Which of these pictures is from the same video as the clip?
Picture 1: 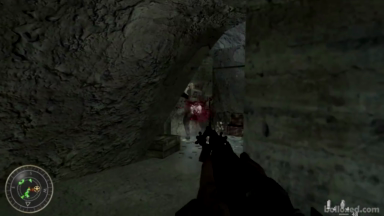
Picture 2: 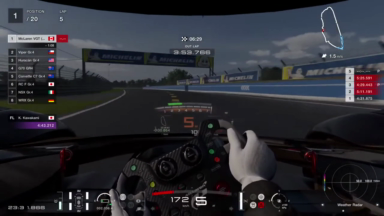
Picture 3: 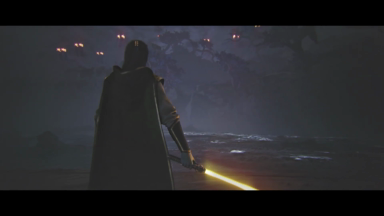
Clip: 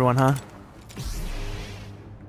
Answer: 3